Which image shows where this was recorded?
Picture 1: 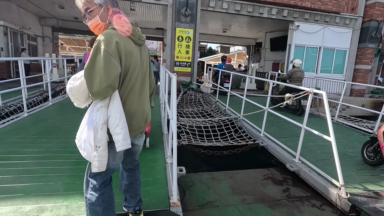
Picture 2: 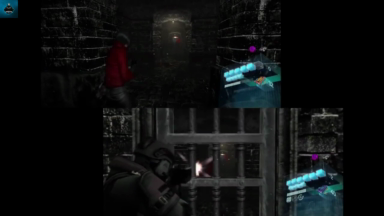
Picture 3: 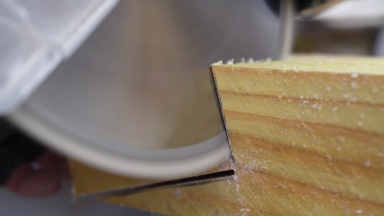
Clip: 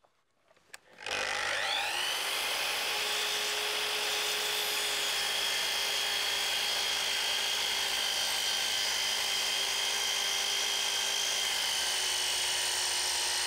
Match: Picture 3